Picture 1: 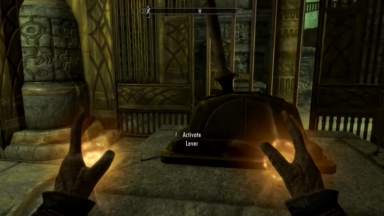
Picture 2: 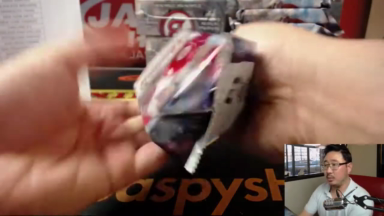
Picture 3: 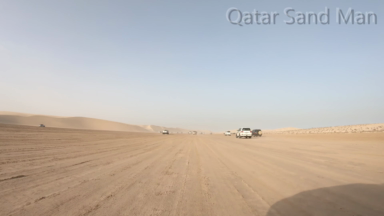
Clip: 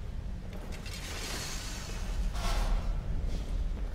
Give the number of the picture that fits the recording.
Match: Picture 1